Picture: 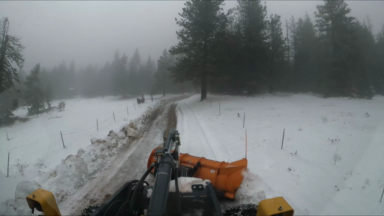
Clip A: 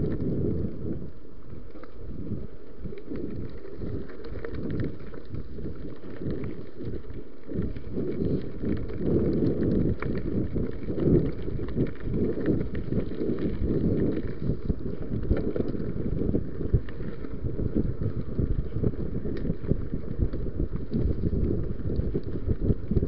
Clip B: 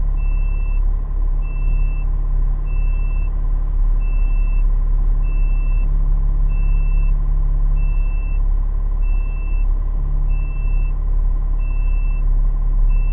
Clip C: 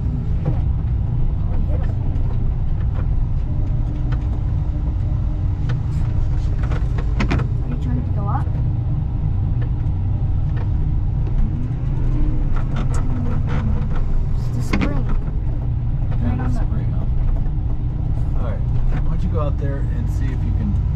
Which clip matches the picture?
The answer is C